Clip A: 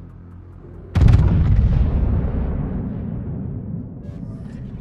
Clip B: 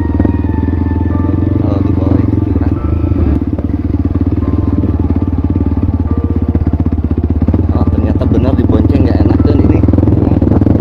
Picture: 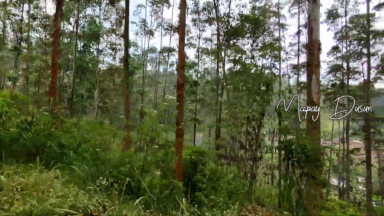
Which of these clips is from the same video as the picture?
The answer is B